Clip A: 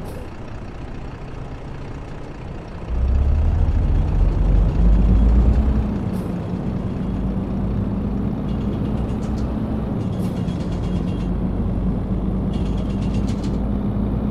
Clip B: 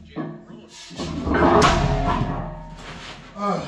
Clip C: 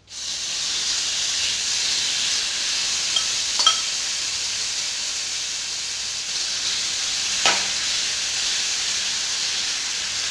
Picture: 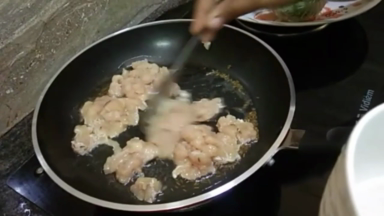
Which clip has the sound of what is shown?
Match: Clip C